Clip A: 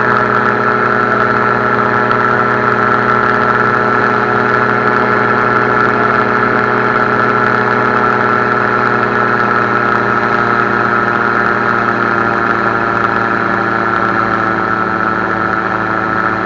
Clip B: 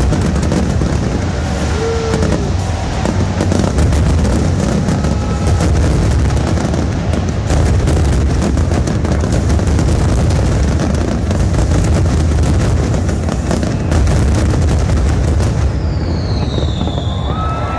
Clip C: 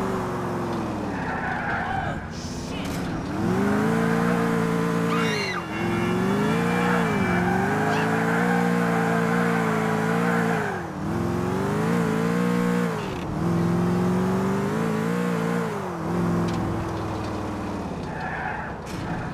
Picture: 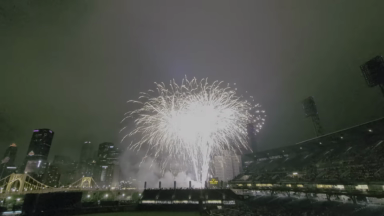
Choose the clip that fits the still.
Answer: B